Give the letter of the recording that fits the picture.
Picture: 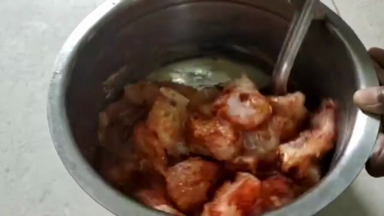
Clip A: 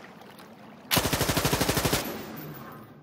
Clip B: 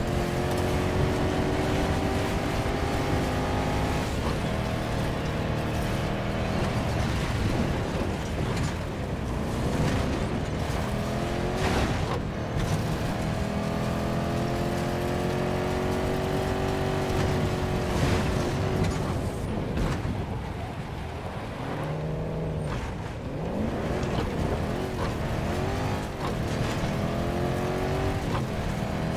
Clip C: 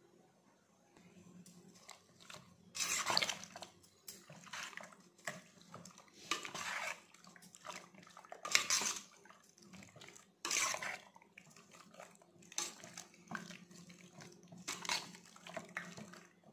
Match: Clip C